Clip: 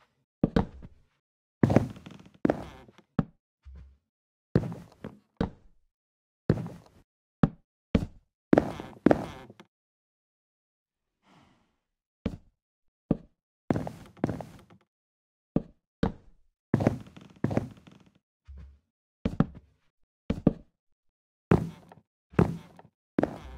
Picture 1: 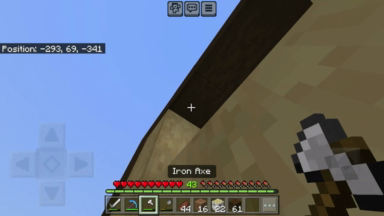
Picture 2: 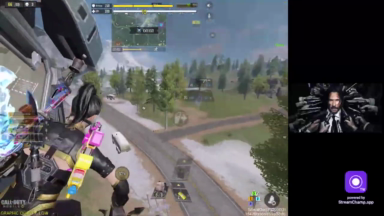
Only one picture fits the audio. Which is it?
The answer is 1